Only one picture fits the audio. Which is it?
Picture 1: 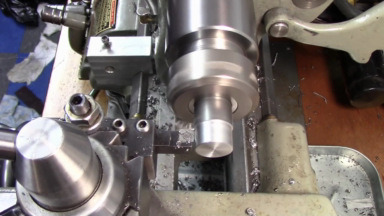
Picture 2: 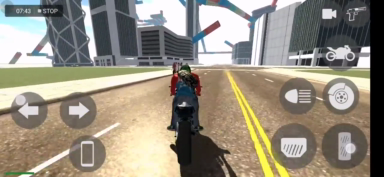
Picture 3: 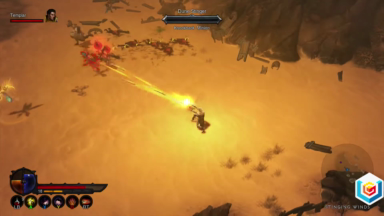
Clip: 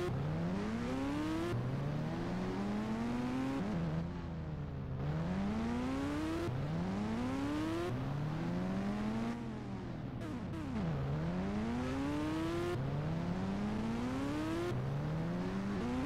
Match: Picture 2